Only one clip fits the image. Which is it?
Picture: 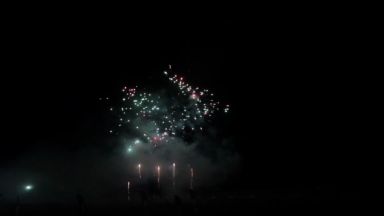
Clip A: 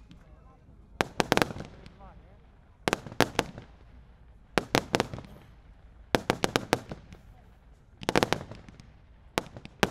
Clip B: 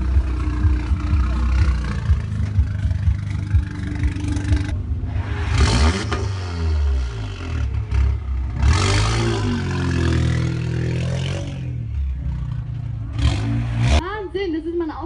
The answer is A